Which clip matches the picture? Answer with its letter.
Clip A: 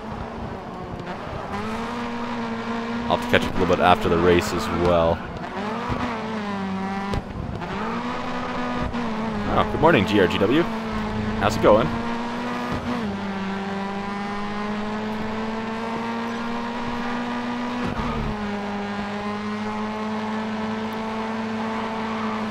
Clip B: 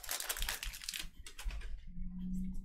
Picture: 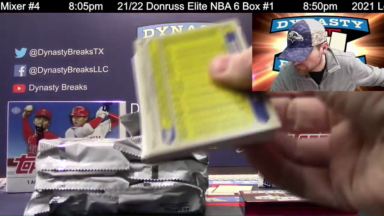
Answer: B